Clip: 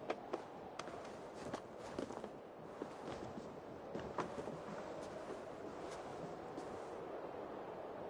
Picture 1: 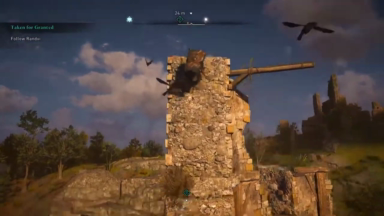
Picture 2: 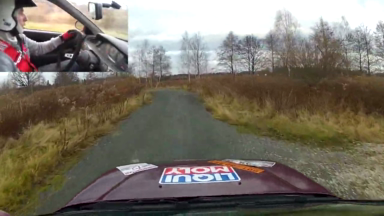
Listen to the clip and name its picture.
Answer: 1